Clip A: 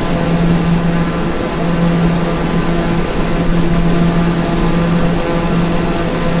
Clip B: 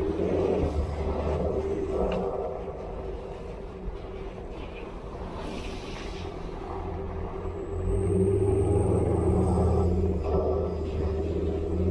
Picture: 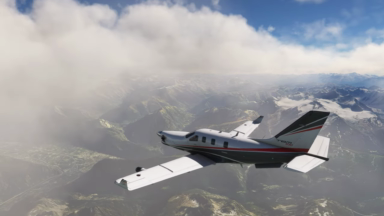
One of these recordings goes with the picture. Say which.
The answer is A